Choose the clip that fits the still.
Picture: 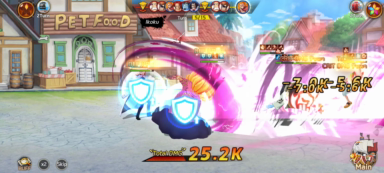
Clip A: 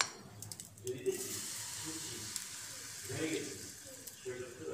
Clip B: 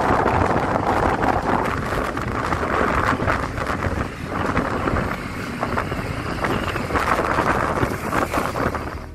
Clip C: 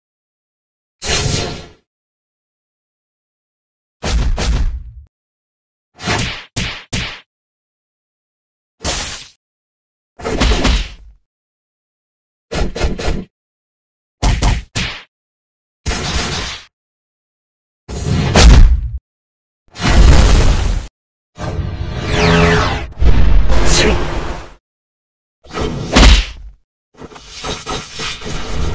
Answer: C